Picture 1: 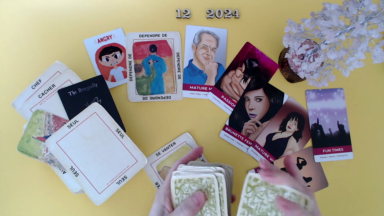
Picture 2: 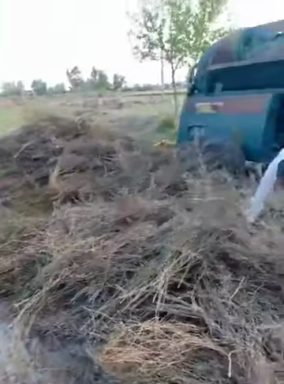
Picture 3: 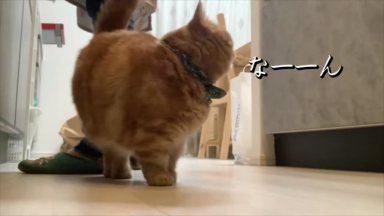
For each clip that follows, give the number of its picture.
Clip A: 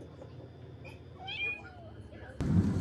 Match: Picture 3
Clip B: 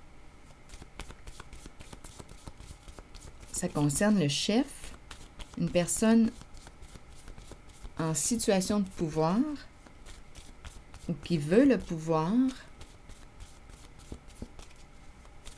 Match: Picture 1